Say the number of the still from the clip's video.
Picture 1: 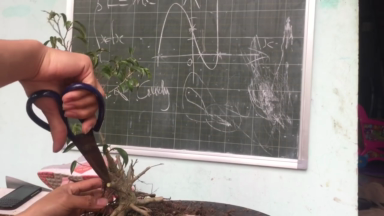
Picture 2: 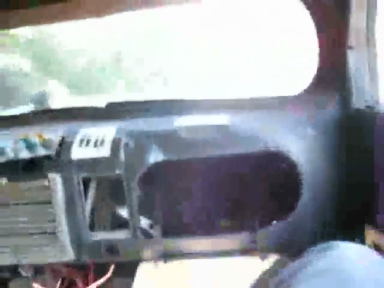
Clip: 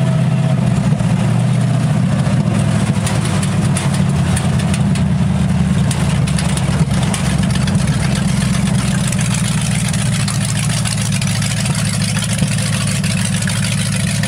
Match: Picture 2